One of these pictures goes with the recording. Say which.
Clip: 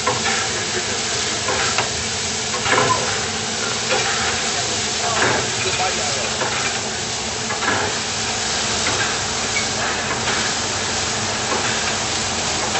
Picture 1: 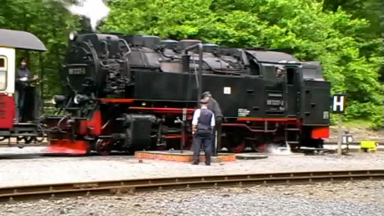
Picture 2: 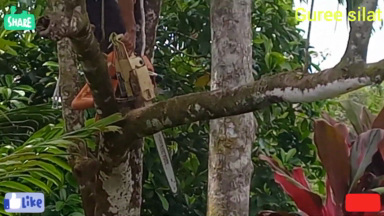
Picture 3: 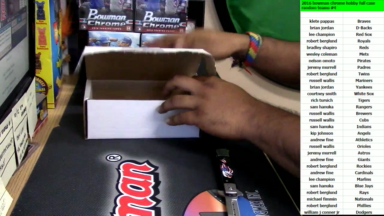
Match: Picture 1